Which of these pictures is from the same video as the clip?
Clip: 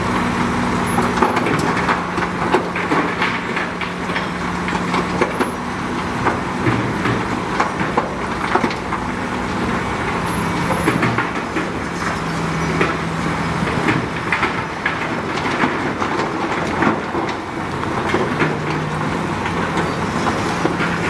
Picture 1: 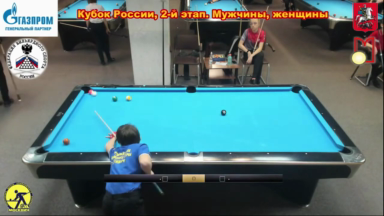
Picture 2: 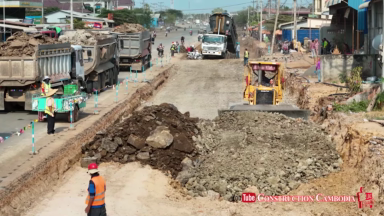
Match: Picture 2